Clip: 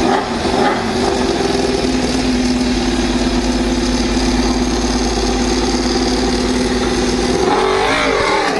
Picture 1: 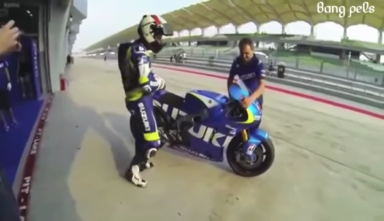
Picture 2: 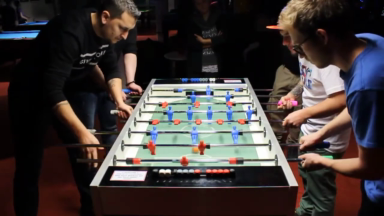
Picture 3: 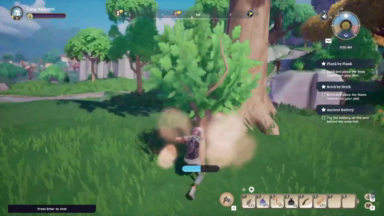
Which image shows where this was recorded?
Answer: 1